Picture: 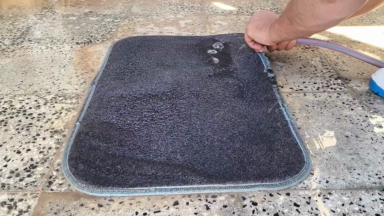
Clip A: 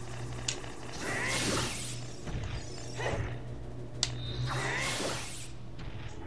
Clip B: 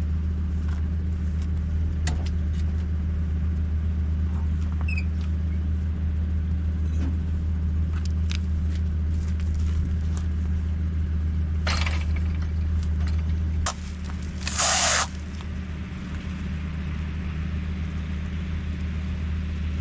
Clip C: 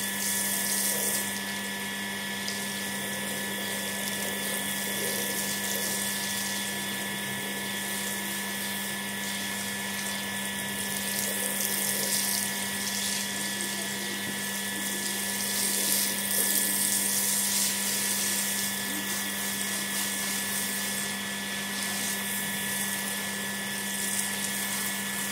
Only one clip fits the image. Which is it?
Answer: C